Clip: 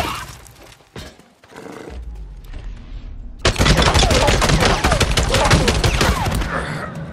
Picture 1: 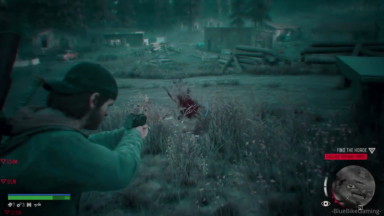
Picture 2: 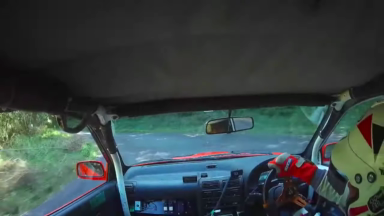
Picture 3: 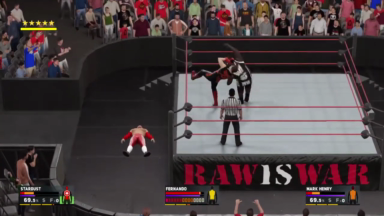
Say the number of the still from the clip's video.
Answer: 1